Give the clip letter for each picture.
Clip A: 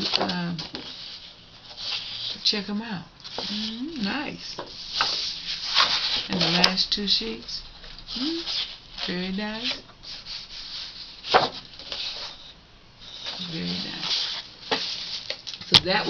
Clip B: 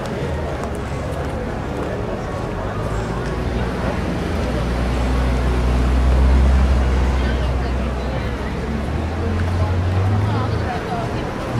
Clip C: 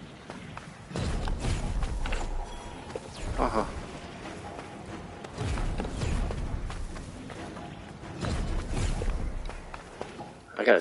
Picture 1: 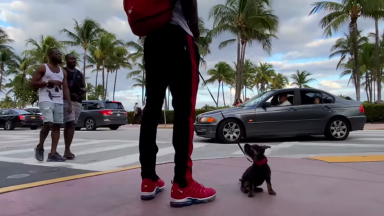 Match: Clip B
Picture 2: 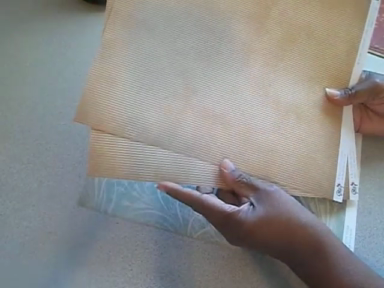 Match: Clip A